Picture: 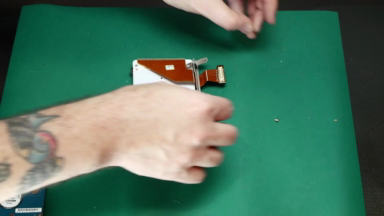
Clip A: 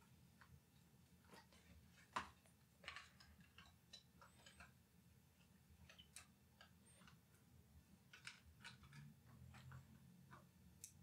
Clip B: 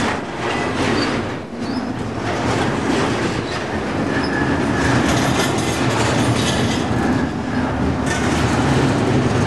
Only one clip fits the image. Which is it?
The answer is A